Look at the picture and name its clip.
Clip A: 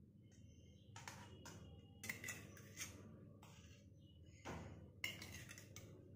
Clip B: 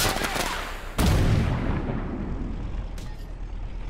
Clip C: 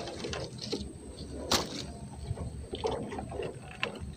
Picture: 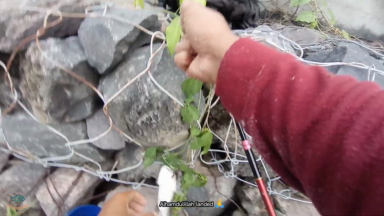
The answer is C